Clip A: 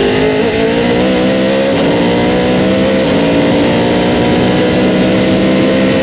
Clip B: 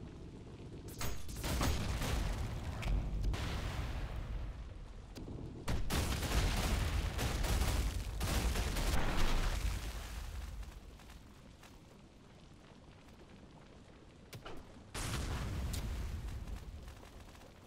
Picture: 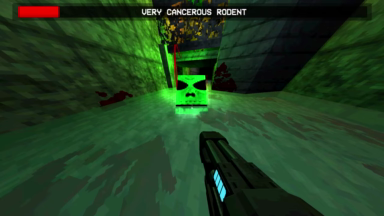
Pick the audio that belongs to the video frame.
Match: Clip B